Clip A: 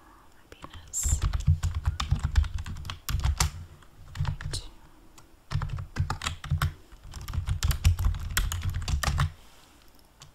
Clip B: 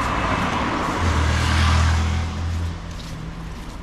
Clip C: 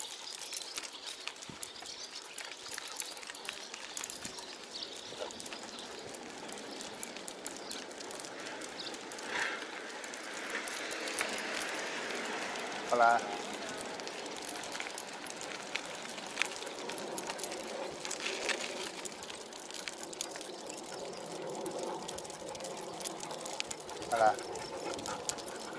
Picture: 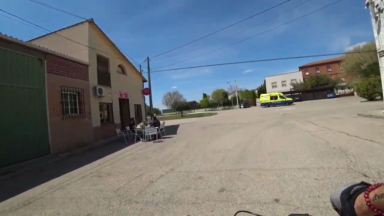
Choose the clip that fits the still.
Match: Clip C